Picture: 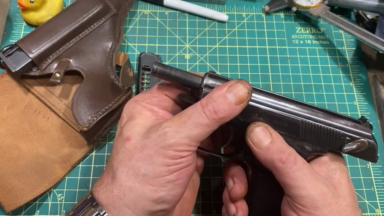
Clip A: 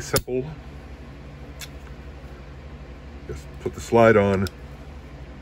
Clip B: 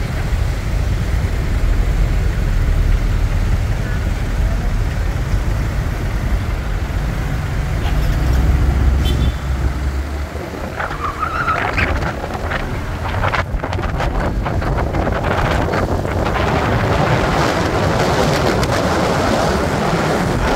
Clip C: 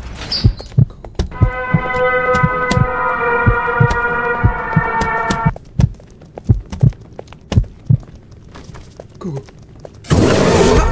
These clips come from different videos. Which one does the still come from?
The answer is A